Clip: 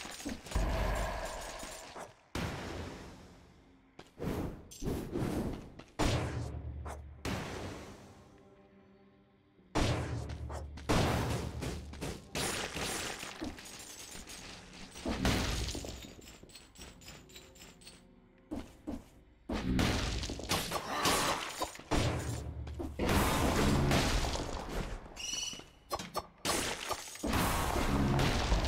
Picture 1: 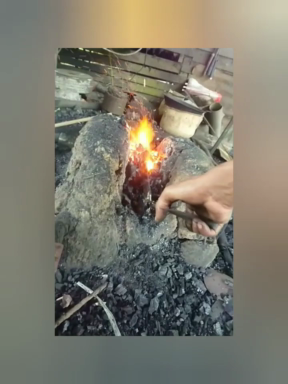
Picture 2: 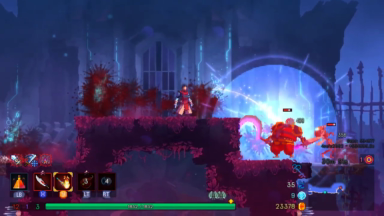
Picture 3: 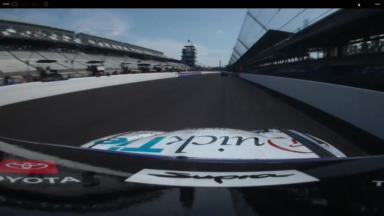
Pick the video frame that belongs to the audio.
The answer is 2